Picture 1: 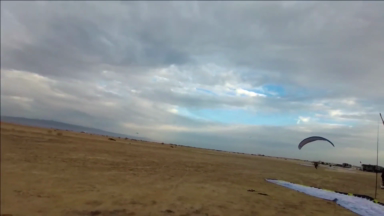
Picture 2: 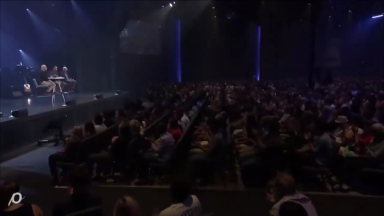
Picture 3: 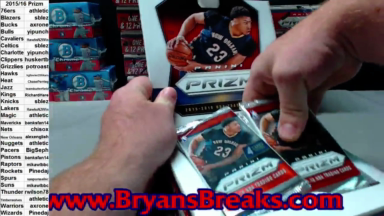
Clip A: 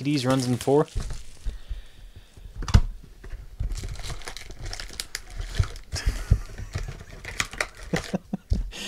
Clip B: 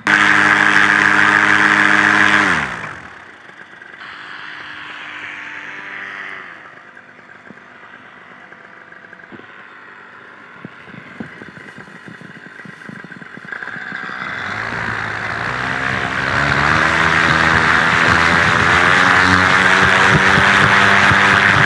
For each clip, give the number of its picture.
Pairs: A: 3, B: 1